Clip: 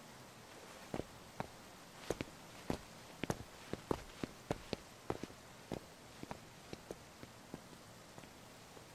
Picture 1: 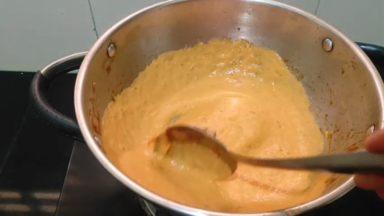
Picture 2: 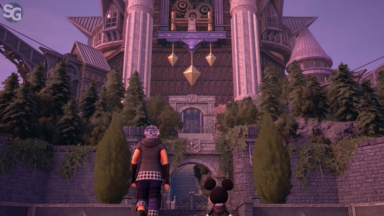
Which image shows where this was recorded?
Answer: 2